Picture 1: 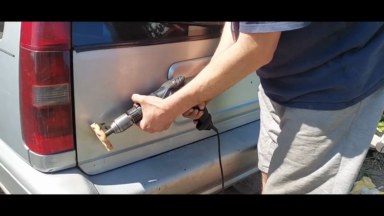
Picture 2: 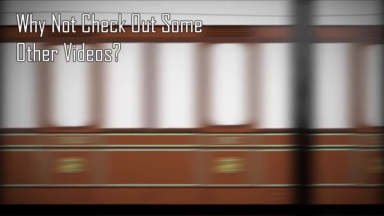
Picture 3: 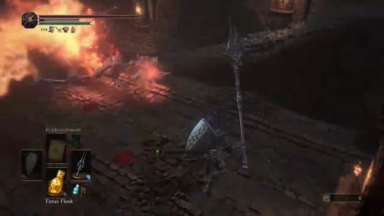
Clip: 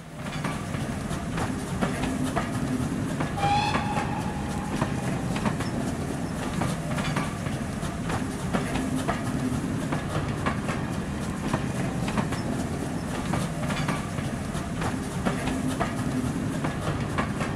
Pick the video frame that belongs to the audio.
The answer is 2